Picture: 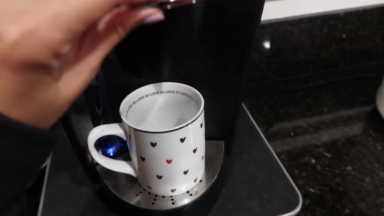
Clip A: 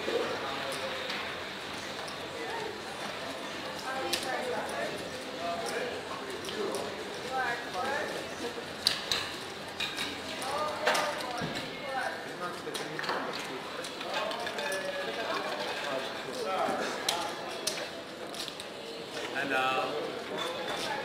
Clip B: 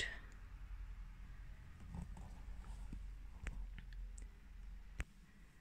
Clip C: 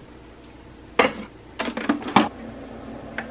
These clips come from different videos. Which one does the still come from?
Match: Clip C